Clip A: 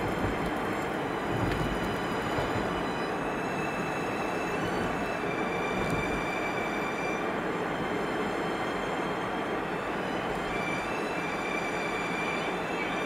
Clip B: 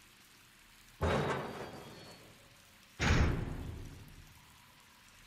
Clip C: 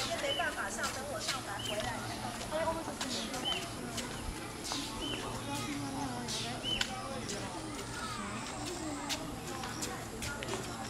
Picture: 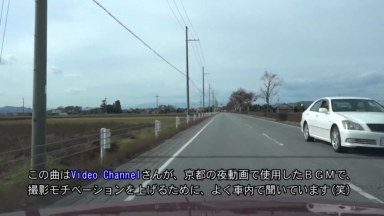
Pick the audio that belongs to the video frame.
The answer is A